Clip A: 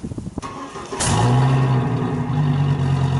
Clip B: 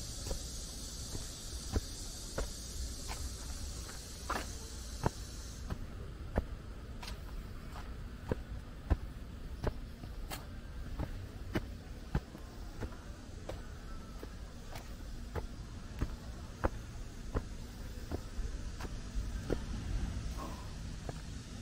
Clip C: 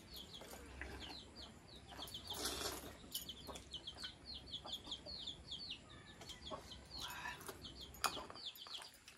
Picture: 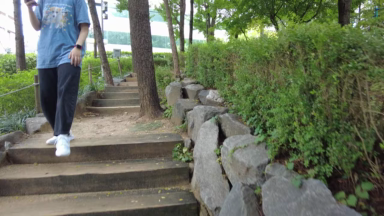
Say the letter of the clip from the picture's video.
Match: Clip B